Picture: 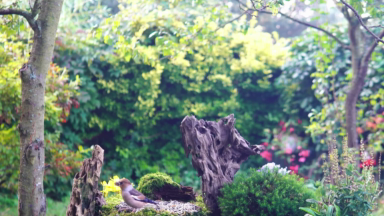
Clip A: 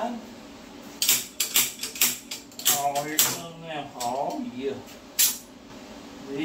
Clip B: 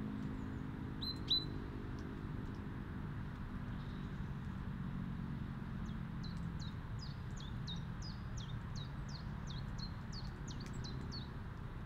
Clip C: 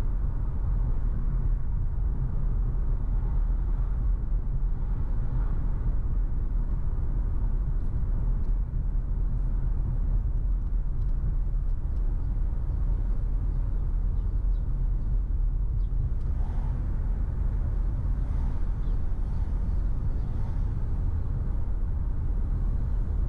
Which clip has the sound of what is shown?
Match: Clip B